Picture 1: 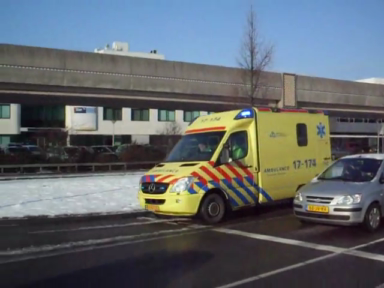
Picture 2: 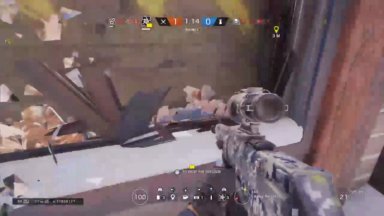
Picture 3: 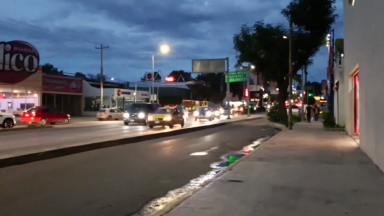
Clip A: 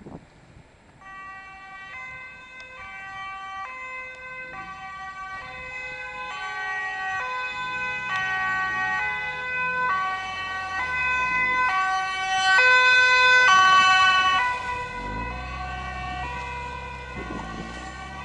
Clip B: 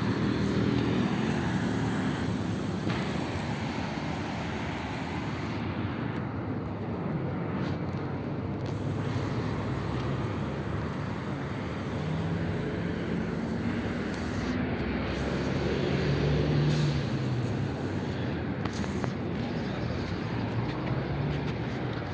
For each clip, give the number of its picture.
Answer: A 1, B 3